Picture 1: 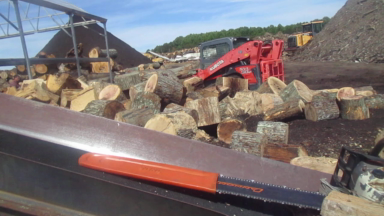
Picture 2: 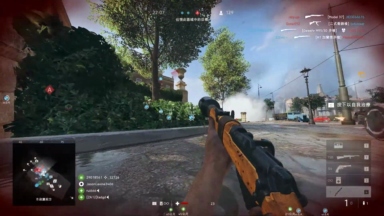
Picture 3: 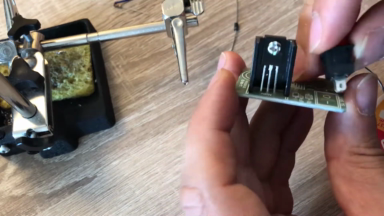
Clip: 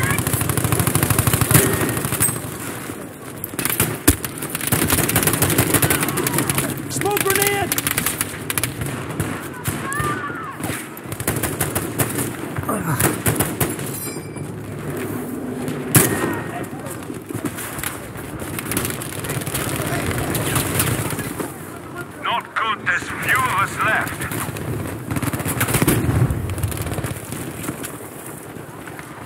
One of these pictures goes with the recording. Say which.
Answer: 2